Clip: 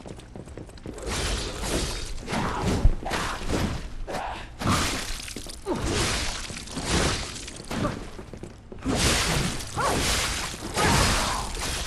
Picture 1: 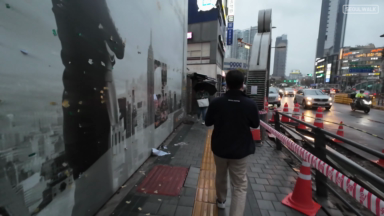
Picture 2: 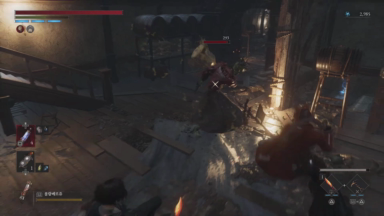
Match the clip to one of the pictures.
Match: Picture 2